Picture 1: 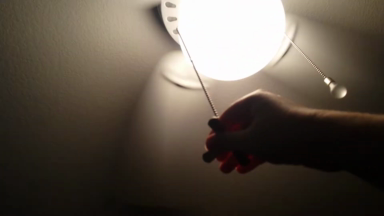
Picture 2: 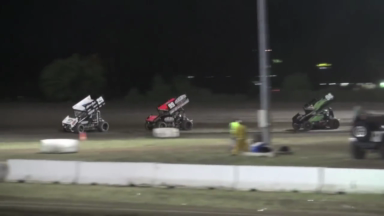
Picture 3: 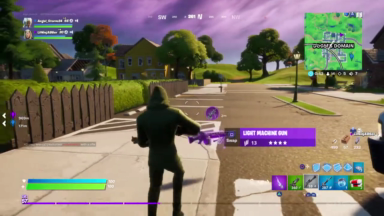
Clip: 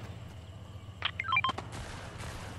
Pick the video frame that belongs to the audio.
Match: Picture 3